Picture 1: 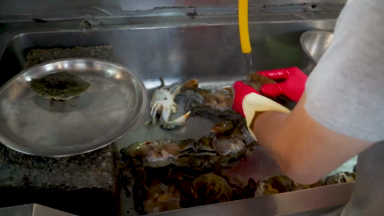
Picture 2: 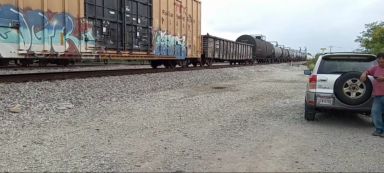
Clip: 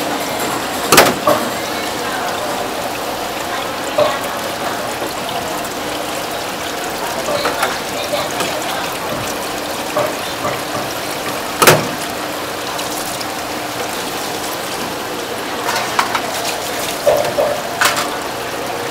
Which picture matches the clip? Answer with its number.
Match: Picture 1